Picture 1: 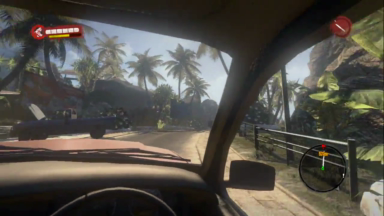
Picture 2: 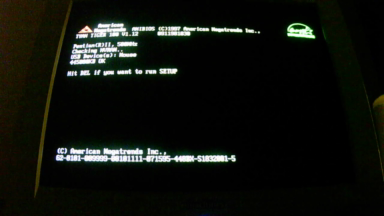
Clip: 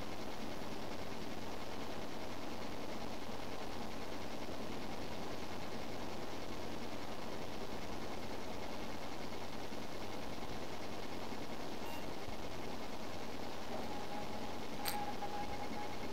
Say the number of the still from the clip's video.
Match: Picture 2